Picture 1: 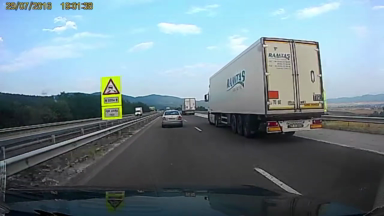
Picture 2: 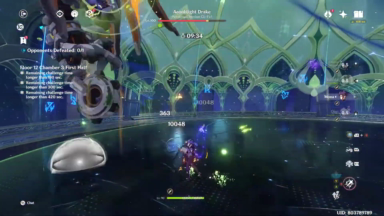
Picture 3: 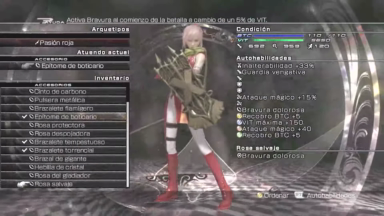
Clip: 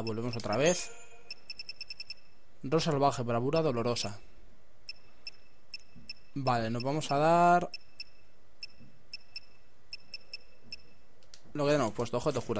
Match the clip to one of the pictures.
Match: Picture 3